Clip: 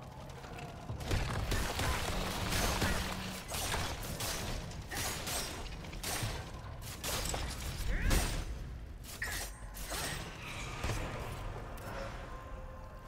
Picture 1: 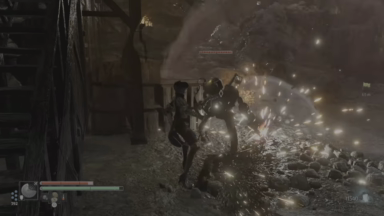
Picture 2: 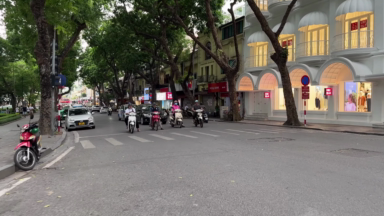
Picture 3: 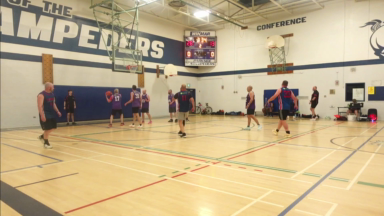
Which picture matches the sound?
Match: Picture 1